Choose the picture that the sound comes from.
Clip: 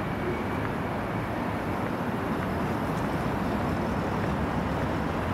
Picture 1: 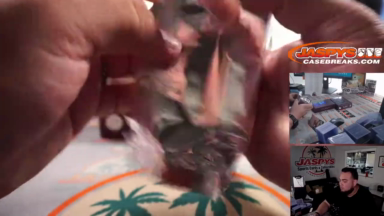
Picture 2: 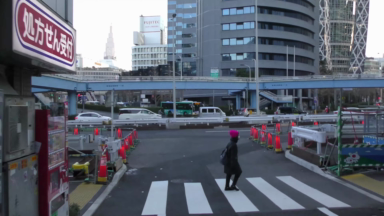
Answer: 2